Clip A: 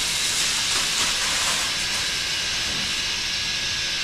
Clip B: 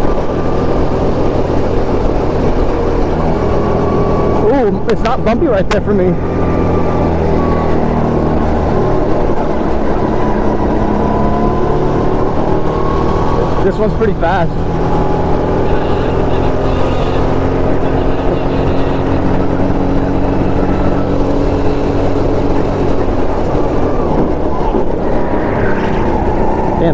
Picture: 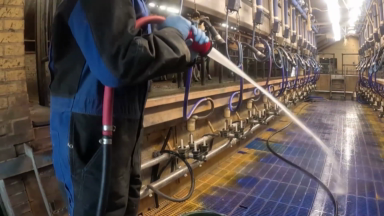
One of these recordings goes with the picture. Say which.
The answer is A